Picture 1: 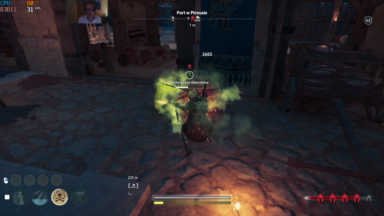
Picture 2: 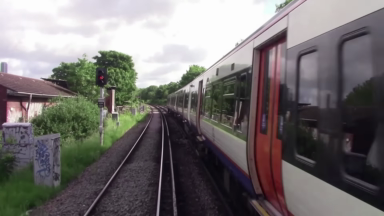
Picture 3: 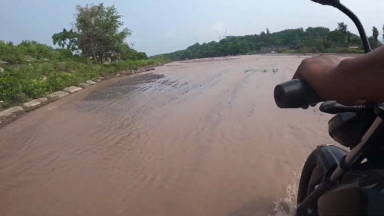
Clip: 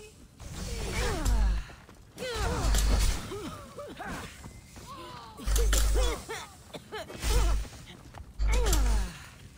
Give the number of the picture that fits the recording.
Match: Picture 1